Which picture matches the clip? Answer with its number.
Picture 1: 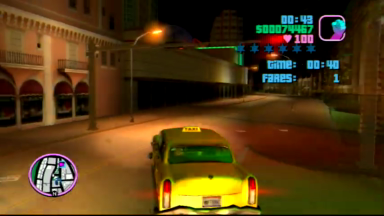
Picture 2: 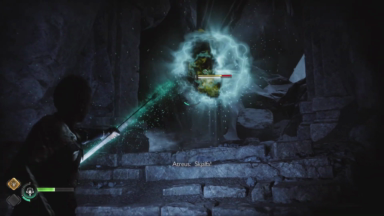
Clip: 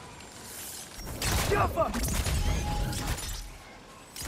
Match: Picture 2